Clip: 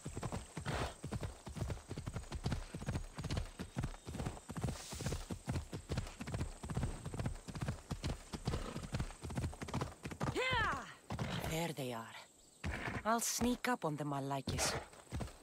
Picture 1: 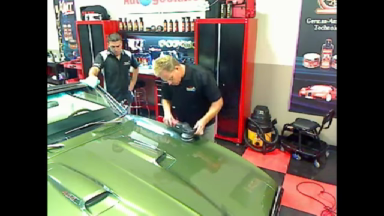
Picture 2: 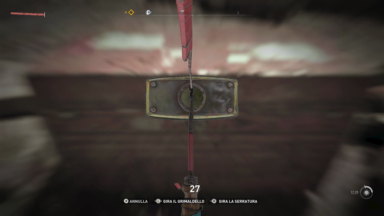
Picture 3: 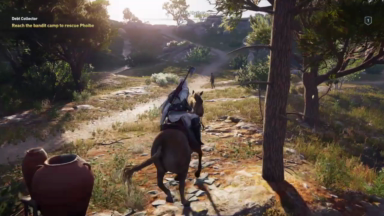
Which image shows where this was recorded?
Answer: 3